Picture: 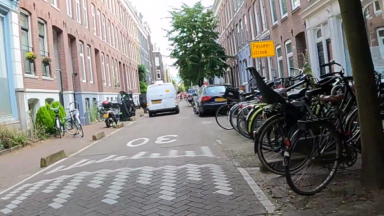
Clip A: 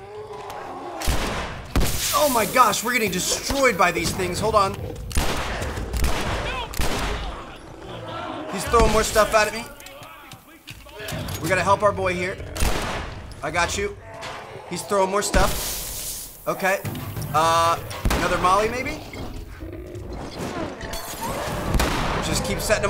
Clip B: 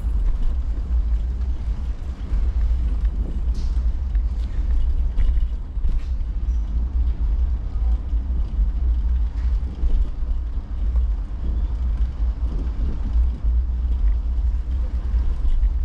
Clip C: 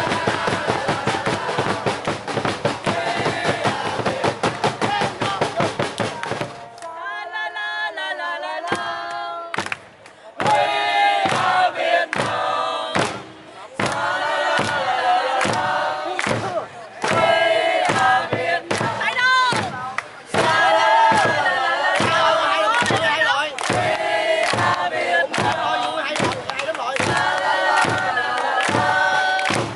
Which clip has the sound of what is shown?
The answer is B